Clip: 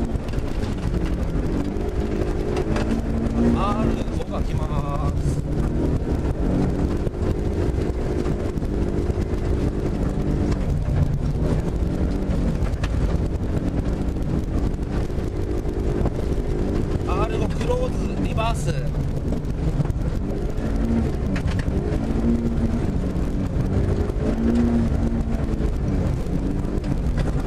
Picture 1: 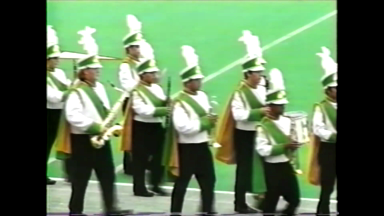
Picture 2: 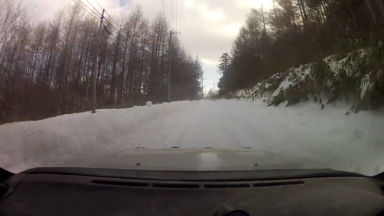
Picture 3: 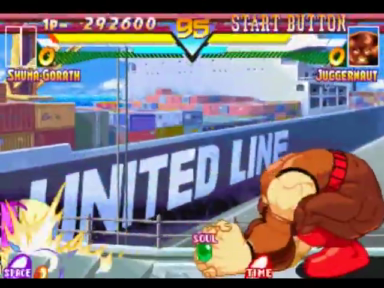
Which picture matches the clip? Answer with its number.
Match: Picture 2